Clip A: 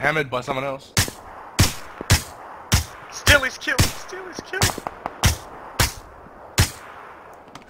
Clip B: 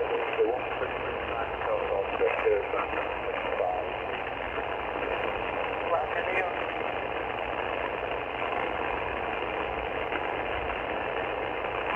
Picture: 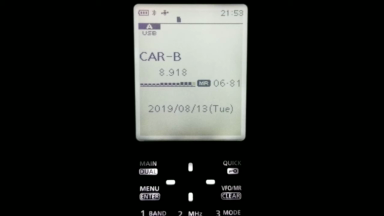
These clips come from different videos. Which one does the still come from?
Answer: B